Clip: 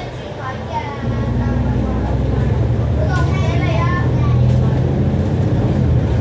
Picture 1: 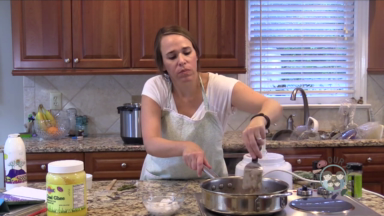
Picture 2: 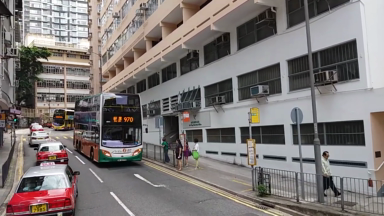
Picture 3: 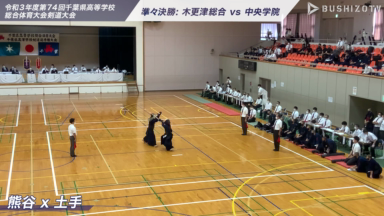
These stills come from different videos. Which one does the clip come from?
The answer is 2